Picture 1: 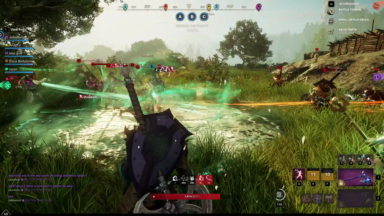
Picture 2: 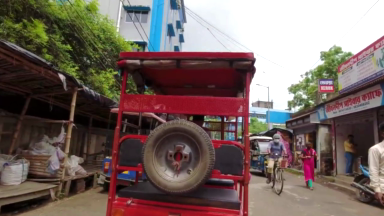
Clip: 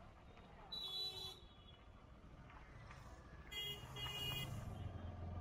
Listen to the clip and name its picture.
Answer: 2